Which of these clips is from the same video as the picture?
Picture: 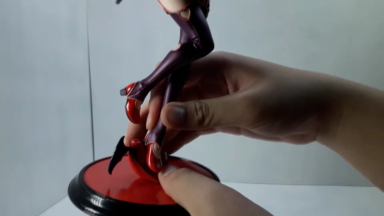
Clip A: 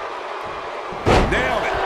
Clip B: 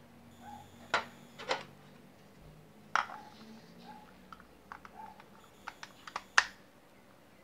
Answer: B